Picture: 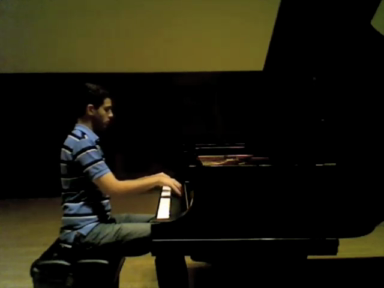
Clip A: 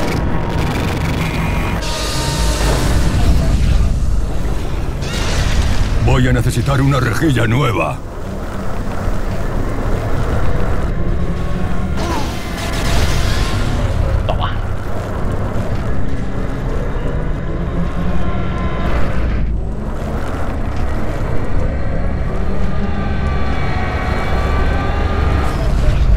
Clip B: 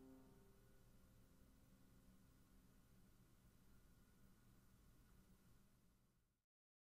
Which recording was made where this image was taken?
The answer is B